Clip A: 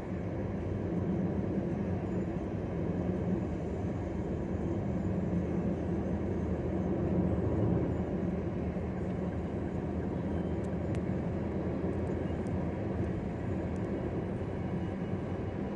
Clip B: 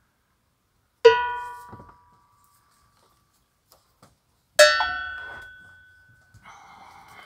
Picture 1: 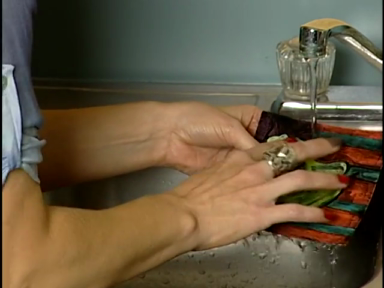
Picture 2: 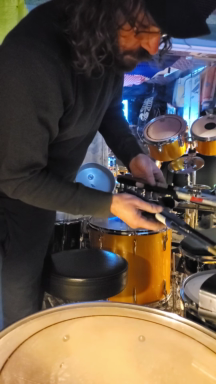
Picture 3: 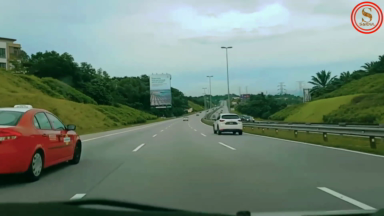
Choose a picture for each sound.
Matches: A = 3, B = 2